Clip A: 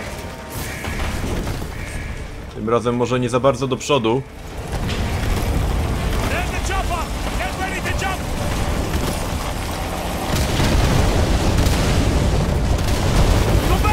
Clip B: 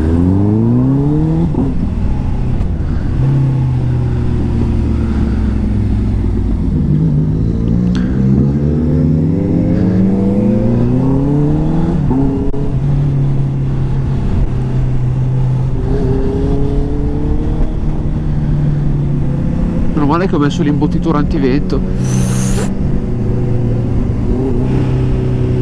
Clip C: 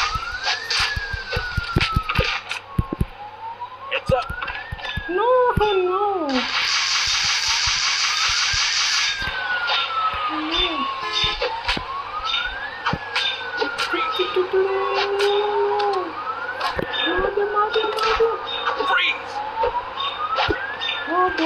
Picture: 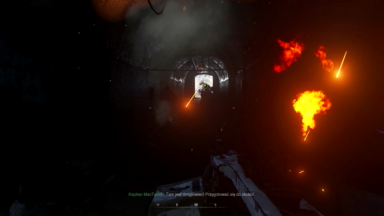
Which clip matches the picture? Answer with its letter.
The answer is A